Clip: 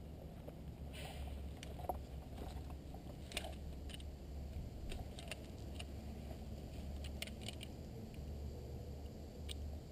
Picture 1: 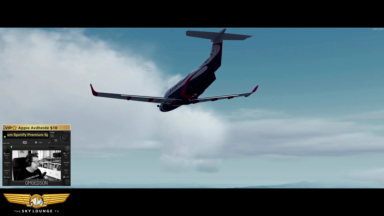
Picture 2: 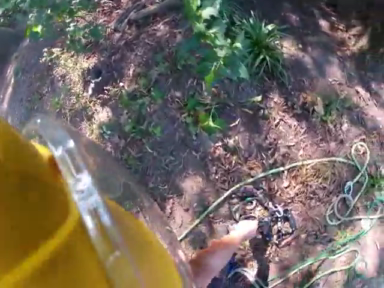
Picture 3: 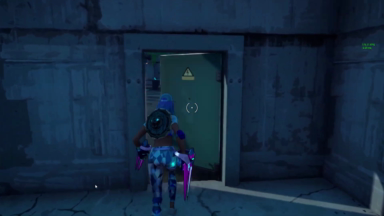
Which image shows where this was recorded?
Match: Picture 2